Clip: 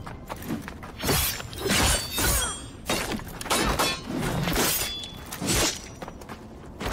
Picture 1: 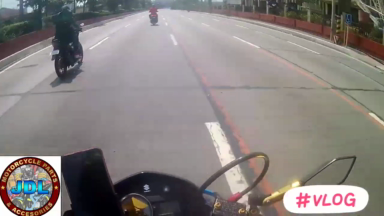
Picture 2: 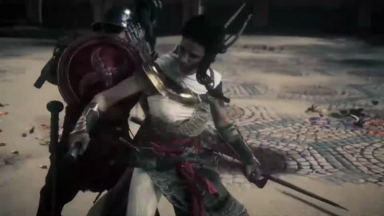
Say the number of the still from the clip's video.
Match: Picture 2